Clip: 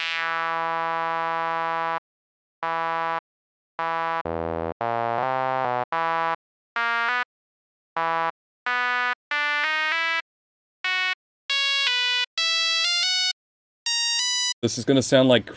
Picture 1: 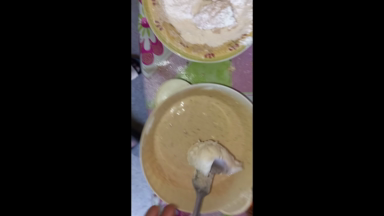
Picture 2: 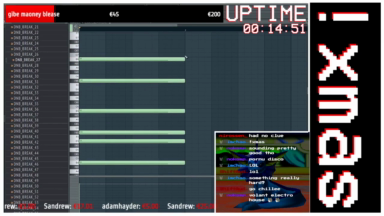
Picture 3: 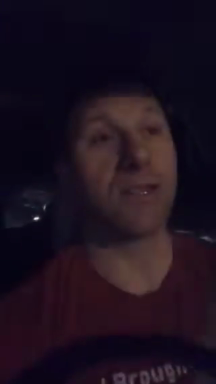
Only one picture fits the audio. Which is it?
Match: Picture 2